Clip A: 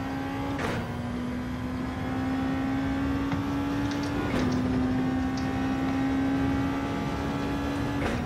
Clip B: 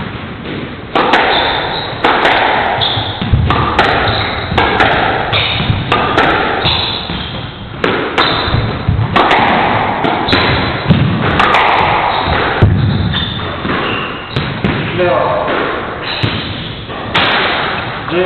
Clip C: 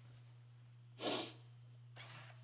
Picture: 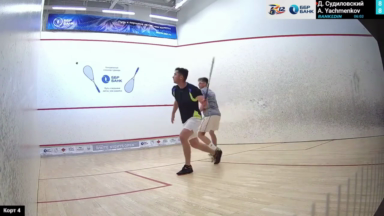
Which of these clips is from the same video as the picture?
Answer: B